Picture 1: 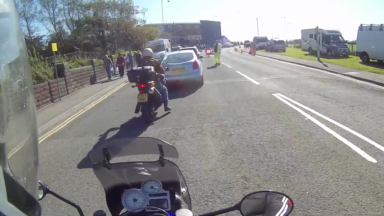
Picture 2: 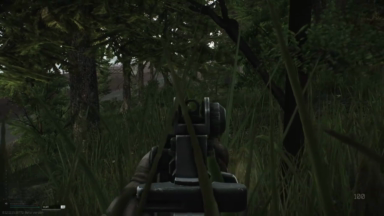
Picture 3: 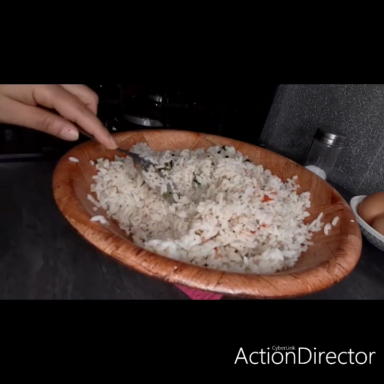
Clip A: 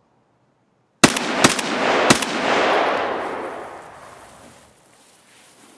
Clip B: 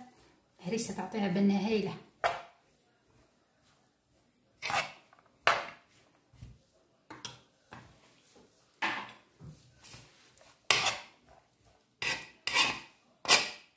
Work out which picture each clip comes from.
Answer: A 2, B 3